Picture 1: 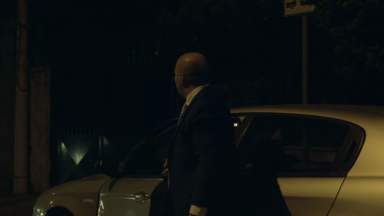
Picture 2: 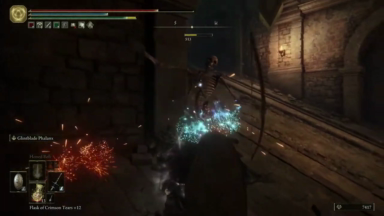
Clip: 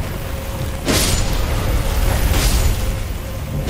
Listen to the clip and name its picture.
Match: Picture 2